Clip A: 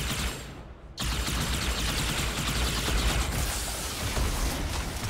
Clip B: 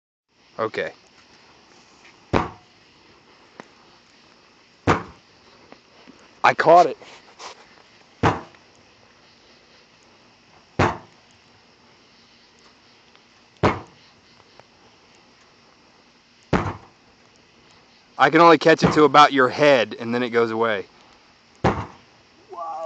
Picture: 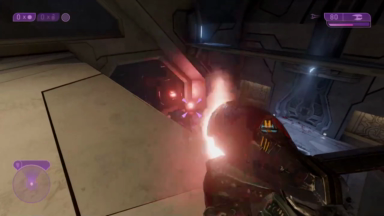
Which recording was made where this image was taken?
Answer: A